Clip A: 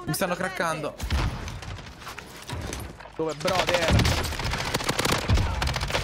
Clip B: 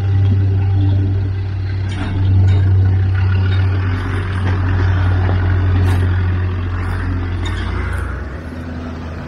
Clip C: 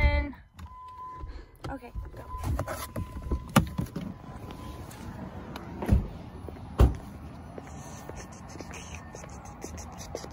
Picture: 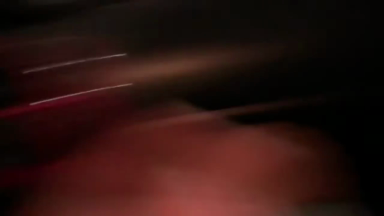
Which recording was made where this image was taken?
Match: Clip C